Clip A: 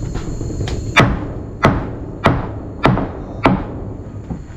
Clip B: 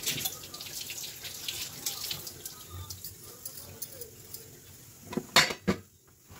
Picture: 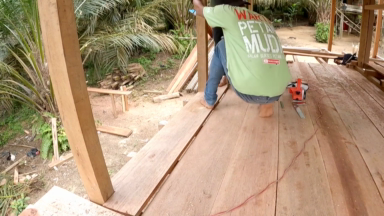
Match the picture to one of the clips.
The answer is A